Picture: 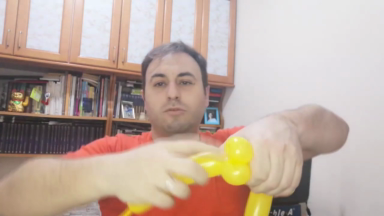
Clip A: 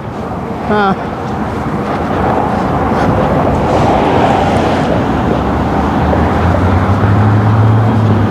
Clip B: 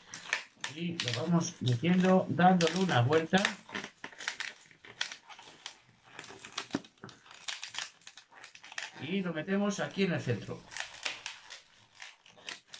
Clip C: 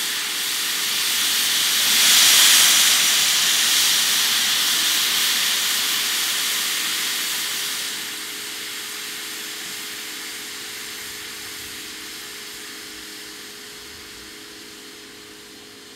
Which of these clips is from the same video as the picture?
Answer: B